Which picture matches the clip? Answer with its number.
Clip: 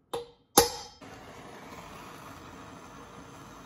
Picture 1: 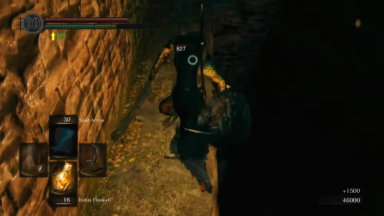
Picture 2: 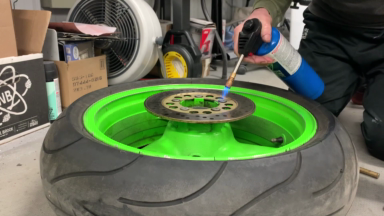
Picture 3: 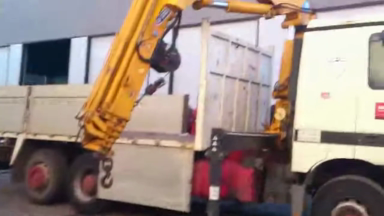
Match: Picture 2